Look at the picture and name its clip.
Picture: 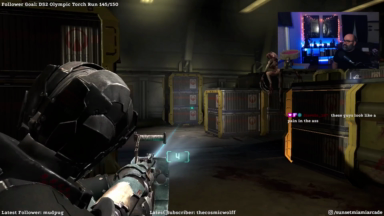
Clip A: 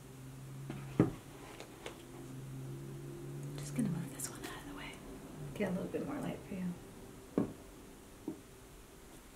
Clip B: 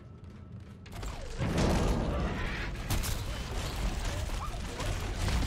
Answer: B